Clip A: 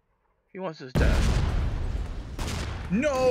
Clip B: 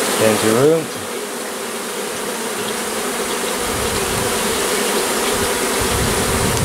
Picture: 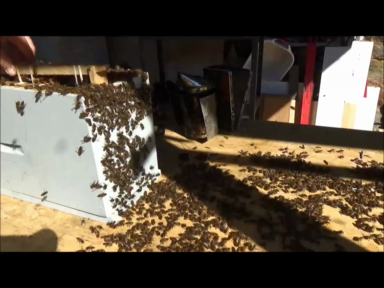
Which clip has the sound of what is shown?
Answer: B